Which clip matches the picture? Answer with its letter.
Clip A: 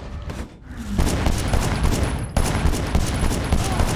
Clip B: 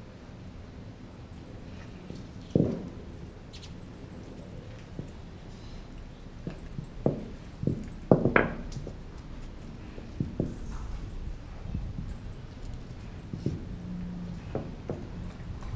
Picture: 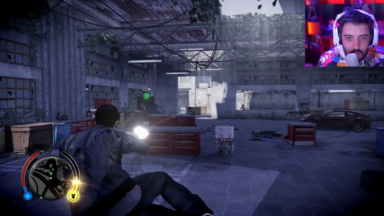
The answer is A